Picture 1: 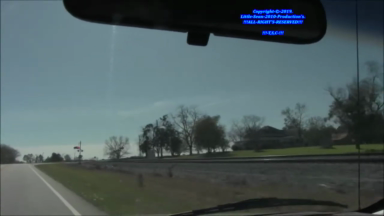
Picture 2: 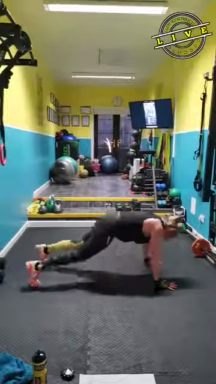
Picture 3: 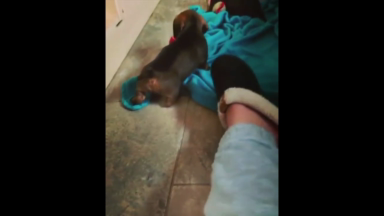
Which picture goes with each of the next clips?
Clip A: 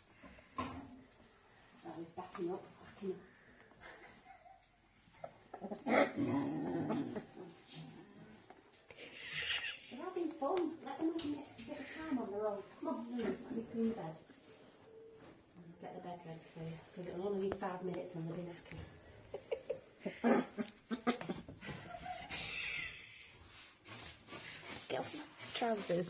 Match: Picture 3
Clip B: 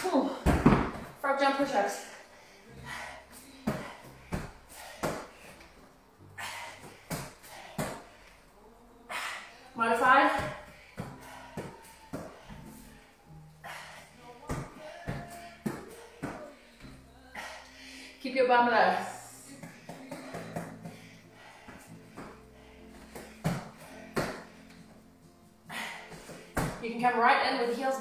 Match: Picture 2